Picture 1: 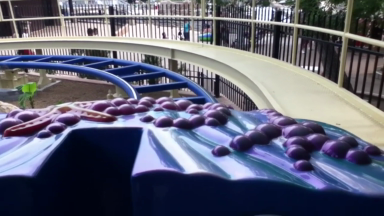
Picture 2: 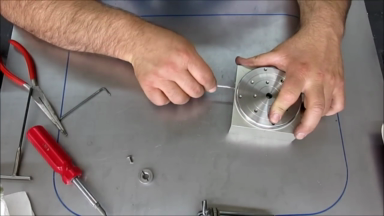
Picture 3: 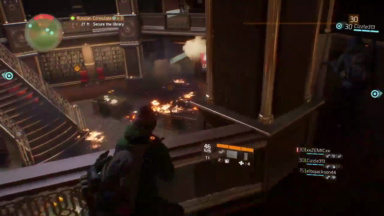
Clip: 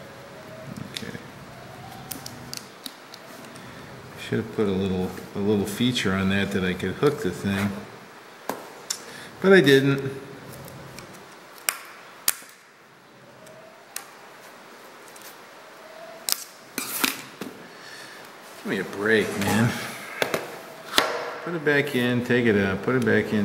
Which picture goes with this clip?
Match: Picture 2